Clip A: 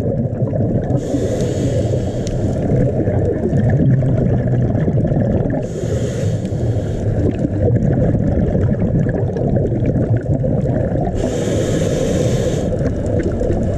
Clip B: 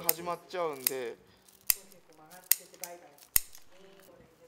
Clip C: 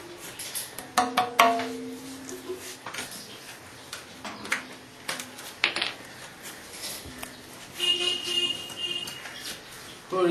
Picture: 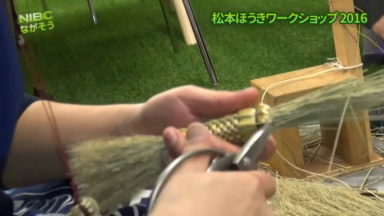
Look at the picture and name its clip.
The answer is B